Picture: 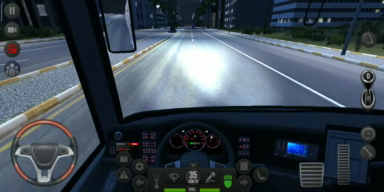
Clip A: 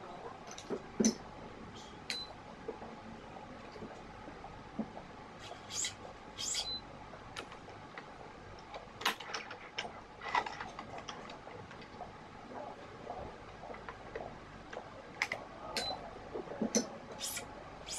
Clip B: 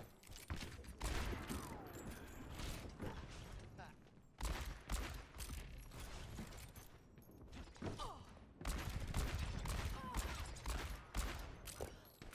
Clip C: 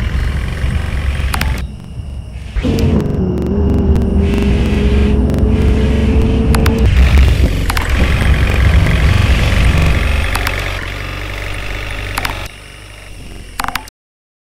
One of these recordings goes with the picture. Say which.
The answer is C